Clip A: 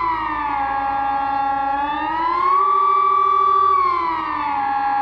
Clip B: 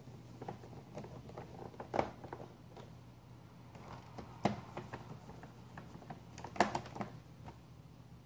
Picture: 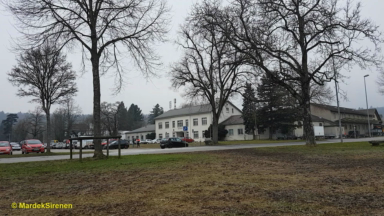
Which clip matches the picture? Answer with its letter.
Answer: A